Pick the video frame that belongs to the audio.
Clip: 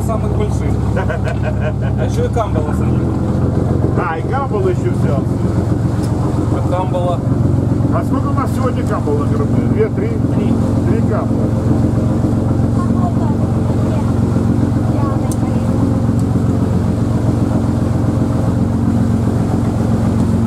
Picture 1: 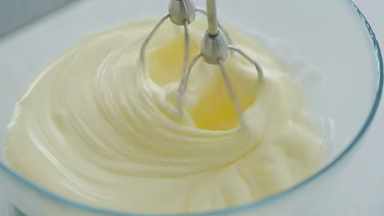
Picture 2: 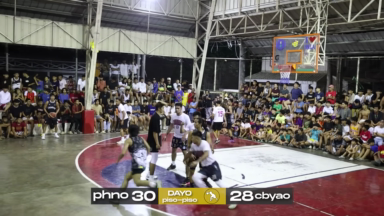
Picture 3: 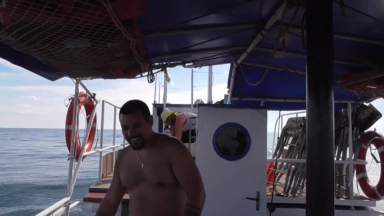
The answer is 3